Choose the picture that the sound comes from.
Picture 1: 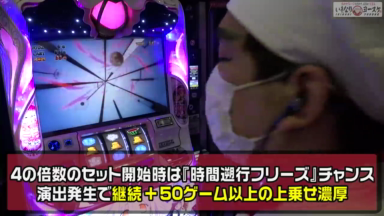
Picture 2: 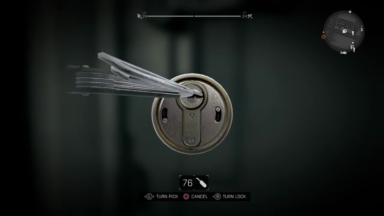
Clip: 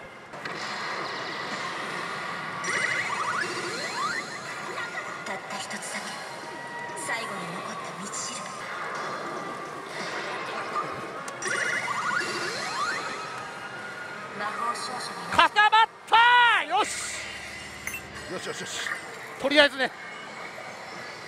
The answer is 1